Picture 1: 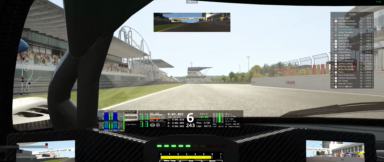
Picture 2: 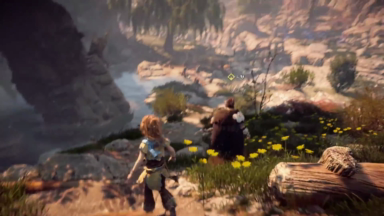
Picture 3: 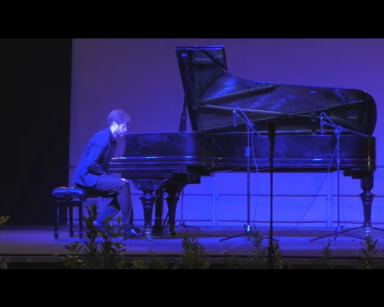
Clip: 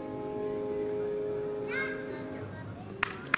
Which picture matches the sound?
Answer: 3